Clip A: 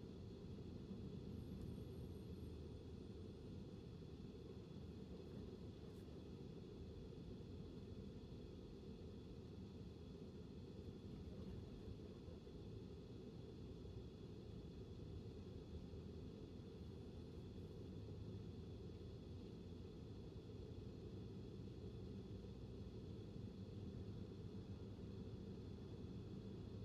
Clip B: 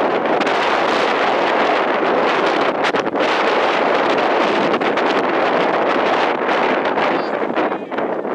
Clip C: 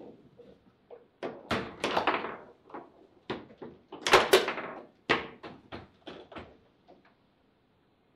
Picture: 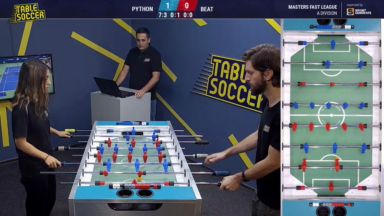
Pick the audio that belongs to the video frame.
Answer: C